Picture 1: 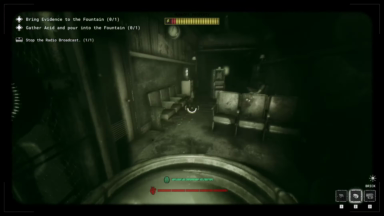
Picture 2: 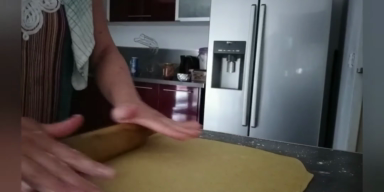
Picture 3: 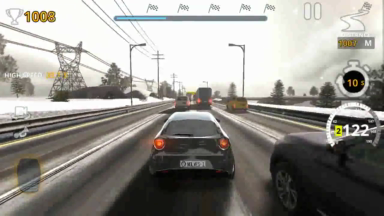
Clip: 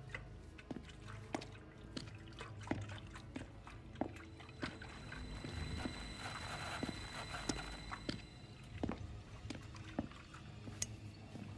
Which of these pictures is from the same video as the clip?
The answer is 1